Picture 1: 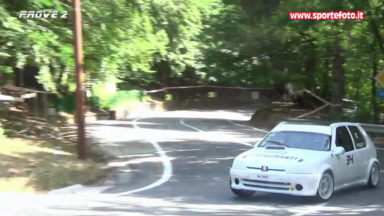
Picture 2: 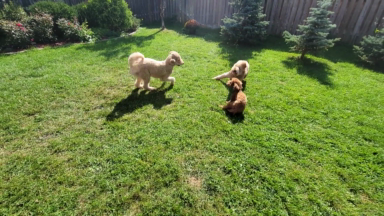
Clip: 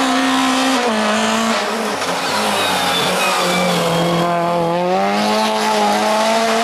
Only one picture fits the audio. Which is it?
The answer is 1